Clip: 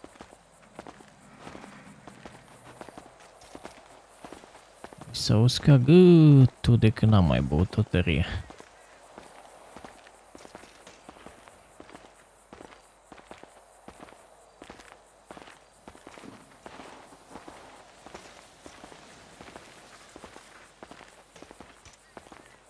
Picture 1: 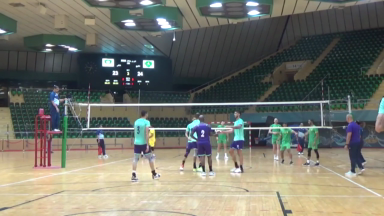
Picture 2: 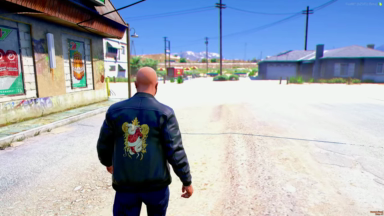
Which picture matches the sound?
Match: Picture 2